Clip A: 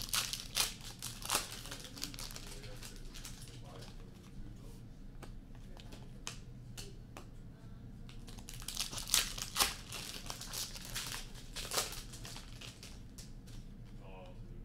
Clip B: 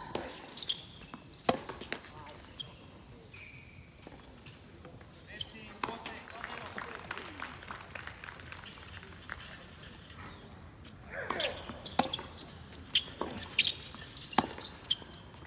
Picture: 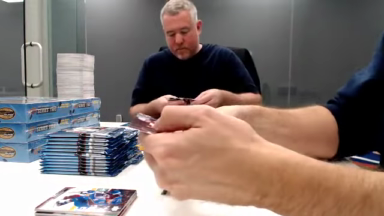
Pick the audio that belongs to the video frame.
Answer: A